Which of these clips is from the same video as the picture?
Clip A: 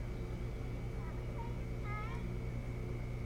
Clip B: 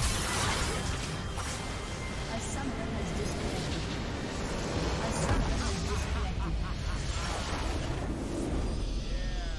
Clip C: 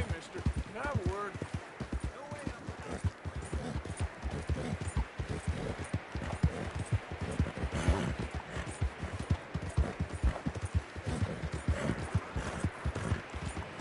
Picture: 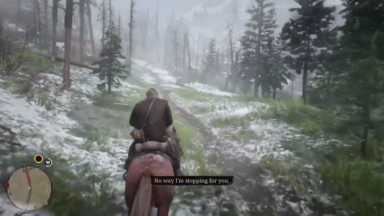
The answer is C